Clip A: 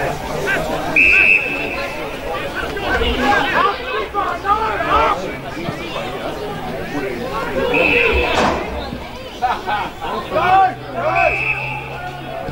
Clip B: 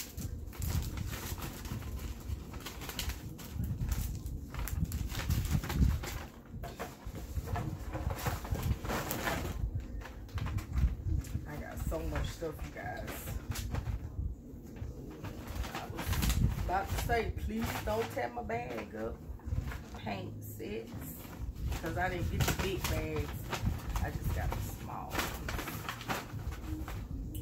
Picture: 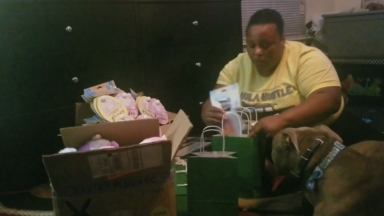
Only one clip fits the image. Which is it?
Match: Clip B